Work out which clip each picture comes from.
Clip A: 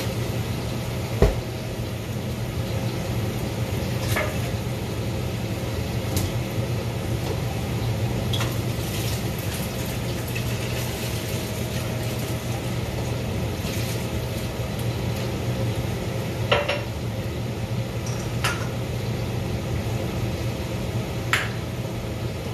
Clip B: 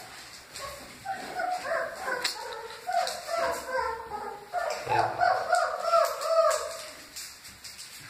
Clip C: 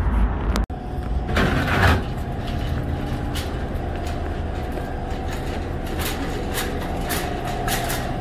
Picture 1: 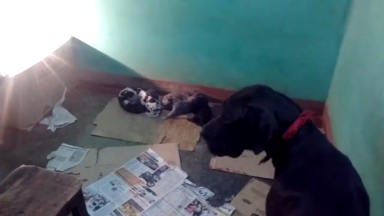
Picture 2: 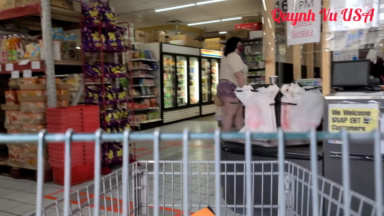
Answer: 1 B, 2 C